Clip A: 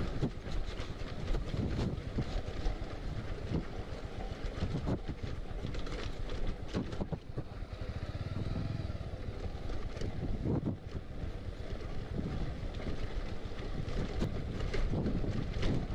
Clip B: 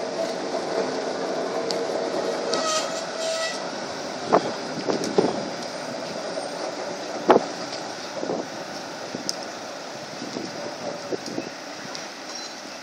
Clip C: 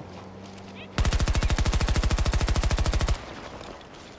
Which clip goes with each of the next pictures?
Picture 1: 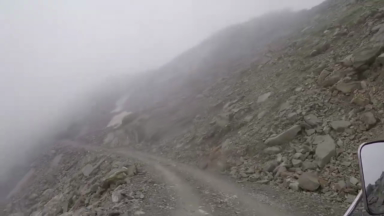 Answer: A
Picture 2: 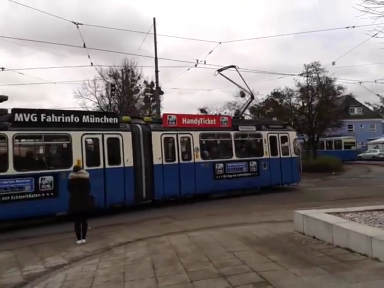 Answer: B